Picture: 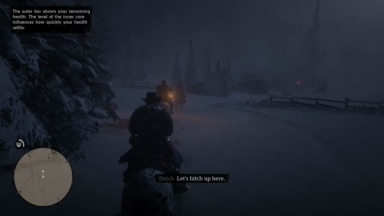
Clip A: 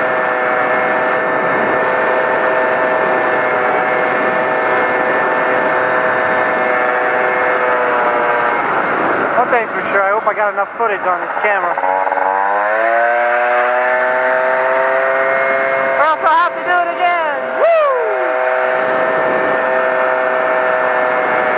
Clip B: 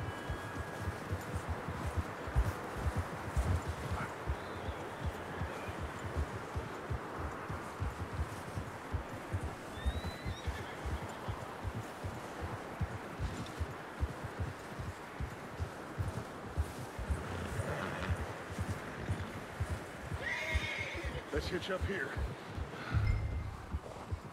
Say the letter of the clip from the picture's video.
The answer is B